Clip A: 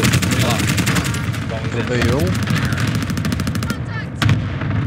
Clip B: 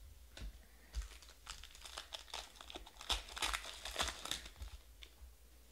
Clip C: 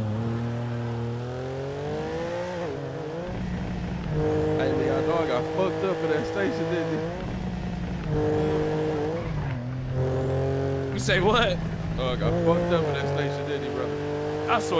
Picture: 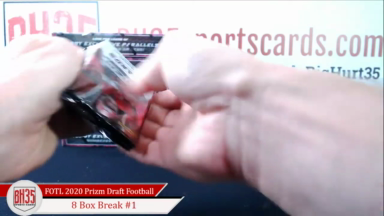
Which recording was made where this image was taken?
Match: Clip B